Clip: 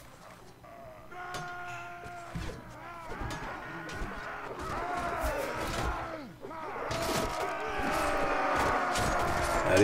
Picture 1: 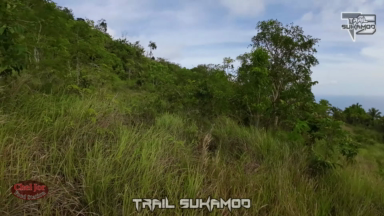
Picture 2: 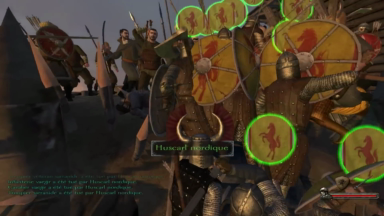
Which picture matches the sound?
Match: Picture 2